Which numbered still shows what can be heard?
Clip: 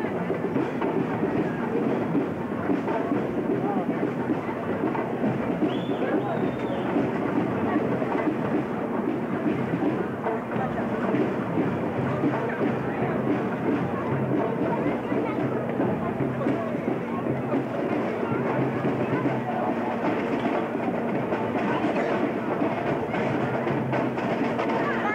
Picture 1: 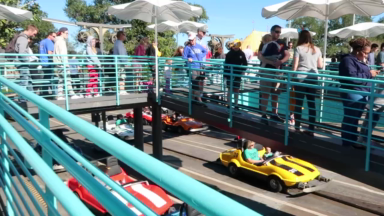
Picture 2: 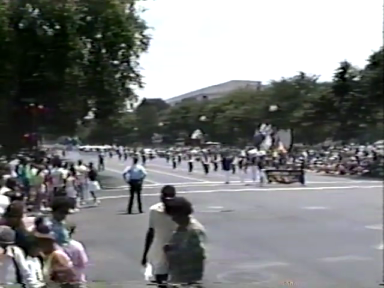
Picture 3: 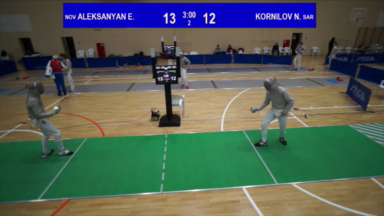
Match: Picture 2